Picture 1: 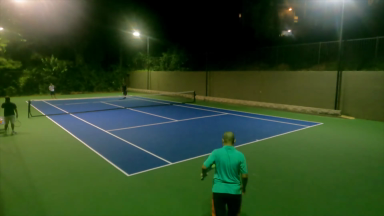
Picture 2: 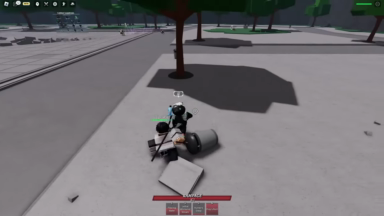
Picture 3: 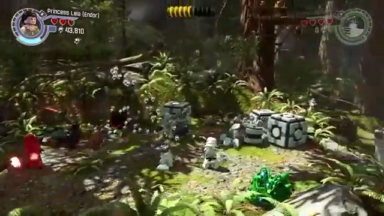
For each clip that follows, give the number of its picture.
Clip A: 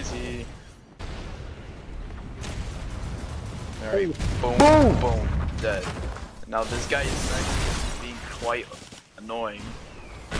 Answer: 2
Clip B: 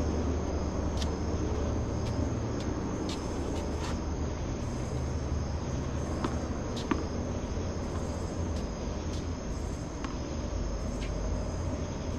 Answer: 1